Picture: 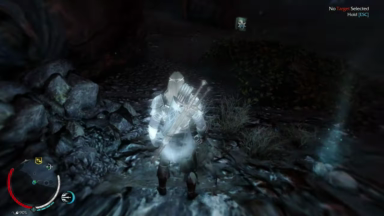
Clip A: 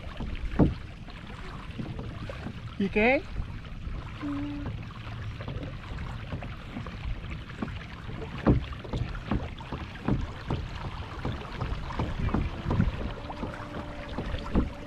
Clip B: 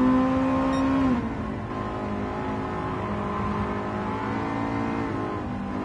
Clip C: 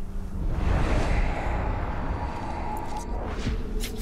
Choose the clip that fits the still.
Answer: C